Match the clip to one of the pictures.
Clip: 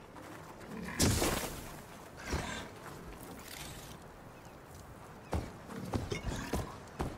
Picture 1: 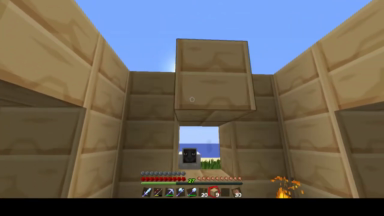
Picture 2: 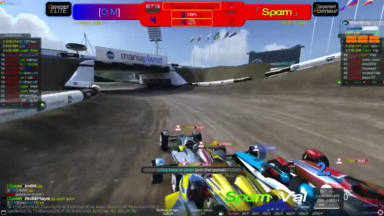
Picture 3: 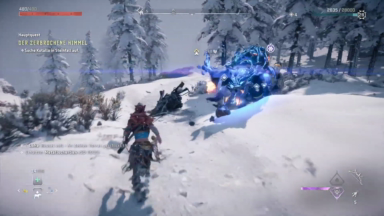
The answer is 3